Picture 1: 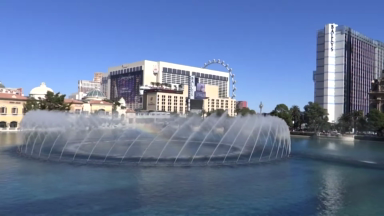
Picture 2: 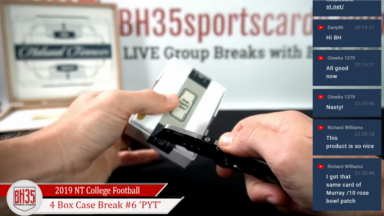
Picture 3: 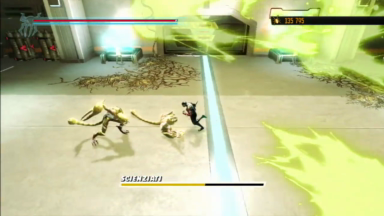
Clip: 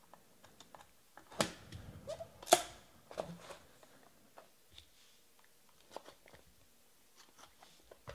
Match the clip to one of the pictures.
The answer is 2